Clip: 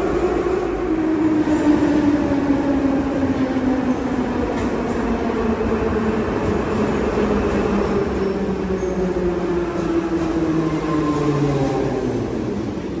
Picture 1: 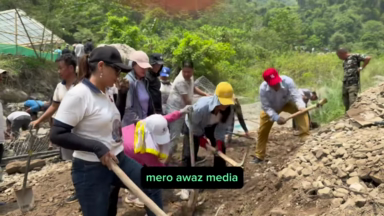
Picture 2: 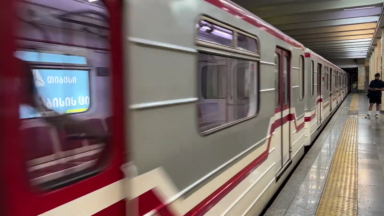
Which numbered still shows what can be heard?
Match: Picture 2